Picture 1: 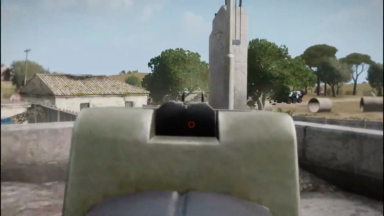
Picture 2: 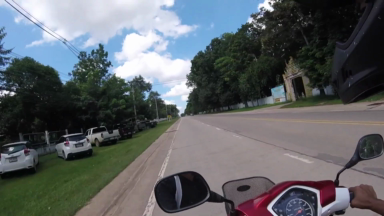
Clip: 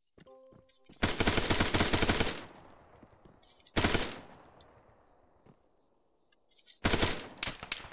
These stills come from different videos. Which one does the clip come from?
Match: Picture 1